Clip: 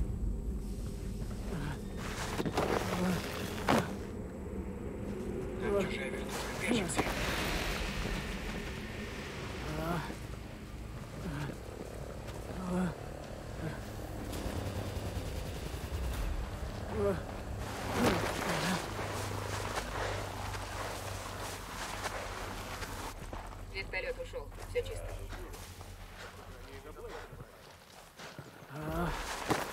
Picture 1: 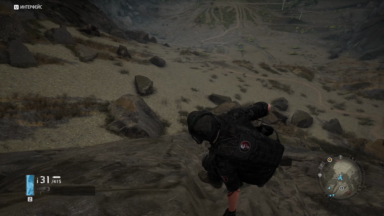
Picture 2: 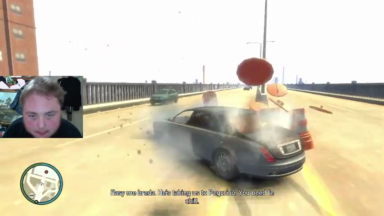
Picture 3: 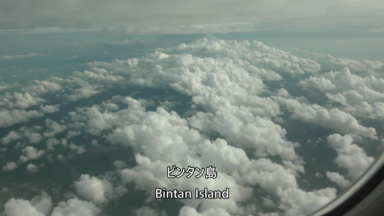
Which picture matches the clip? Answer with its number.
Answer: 1